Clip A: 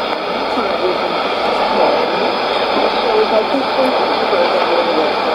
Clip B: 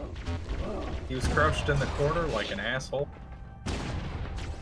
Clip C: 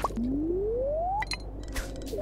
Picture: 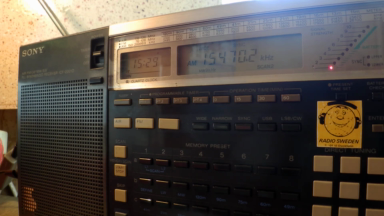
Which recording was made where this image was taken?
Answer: A